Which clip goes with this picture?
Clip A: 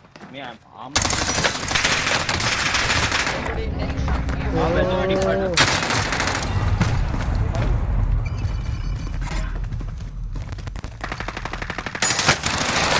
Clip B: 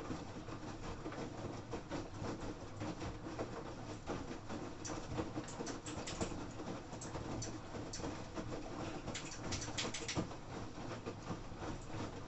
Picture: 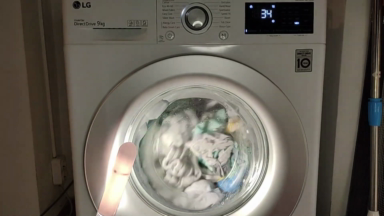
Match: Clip B